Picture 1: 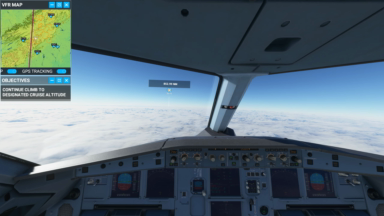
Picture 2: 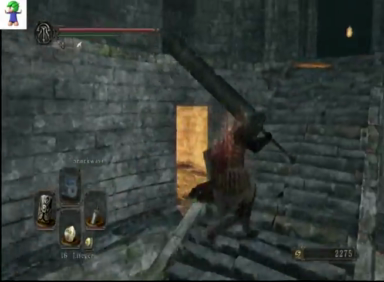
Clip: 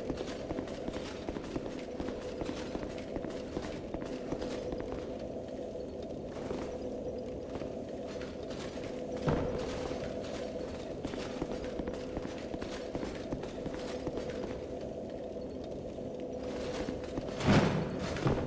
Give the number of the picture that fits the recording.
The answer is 2